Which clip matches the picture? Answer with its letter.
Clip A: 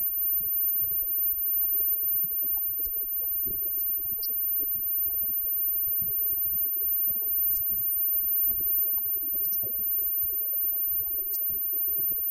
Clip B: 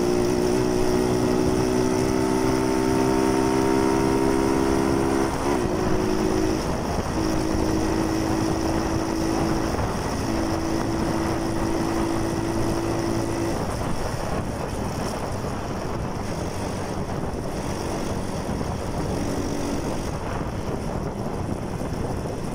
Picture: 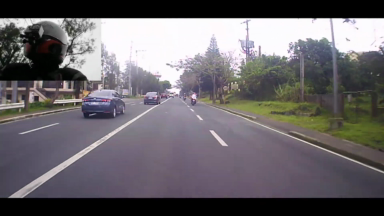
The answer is B